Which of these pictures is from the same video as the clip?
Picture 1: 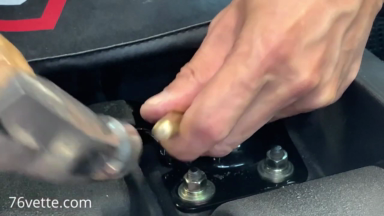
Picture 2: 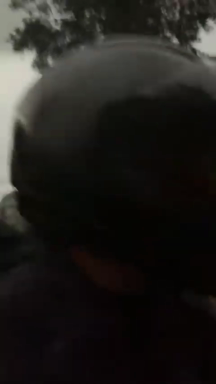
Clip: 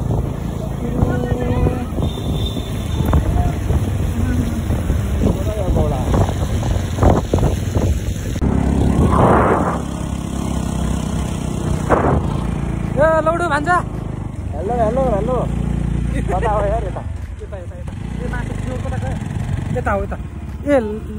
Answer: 2